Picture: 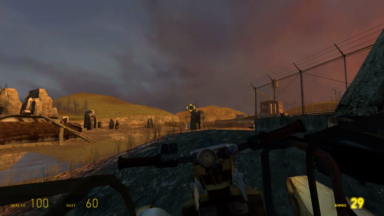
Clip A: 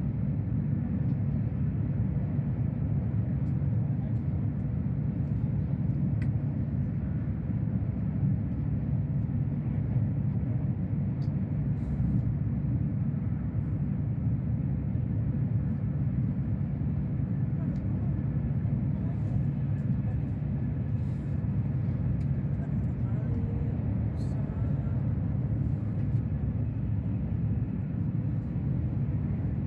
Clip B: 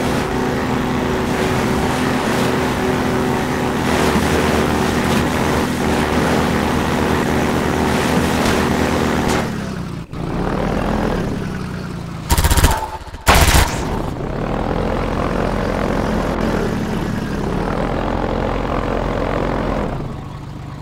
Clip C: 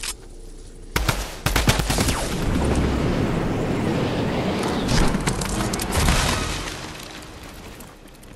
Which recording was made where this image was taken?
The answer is B